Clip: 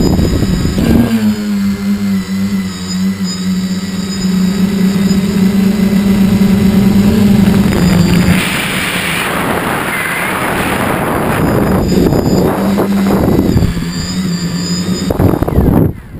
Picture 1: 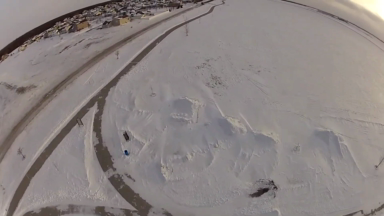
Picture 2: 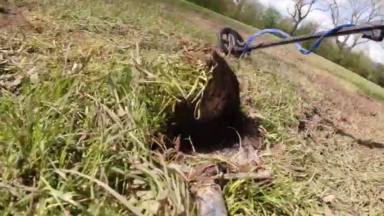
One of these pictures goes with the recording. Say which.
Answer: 1